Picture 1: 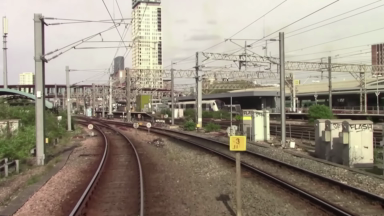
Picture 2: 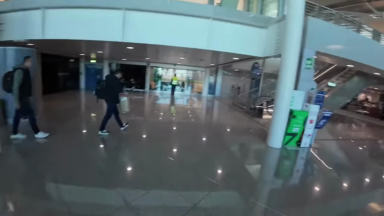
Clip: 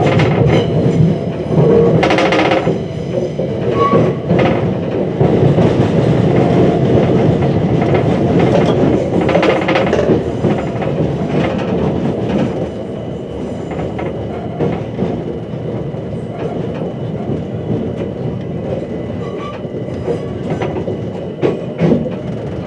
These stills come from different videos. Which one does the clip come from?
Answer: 1